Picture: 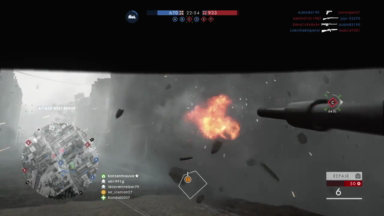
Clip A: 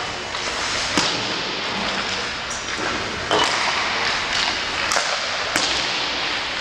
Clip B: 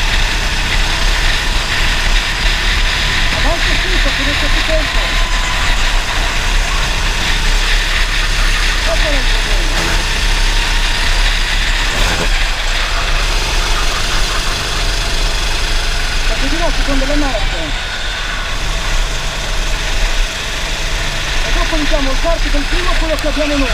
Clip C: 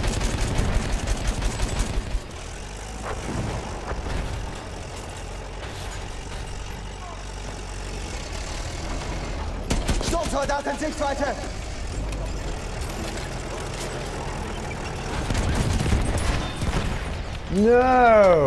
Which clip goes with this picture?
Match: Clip C